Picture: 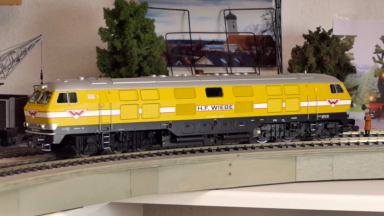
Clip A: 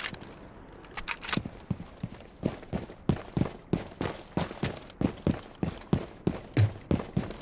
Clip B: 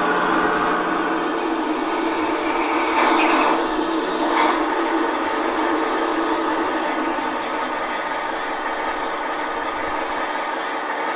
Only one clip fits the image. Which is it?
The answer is B